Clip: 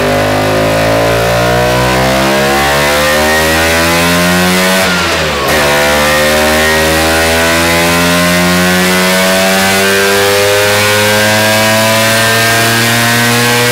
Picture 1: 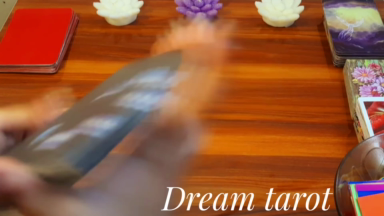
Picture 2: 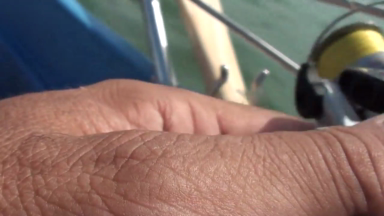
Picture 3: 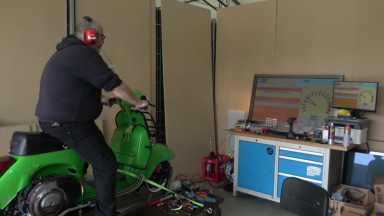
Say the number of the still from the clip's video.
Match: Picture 3